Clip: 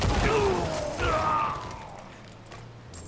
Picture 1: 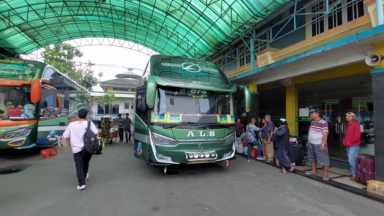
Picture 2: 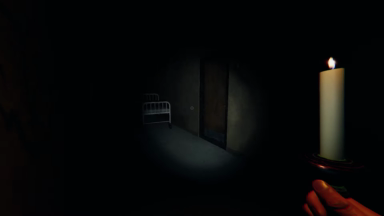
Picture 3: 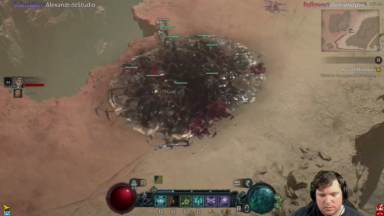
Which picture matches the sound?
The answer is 3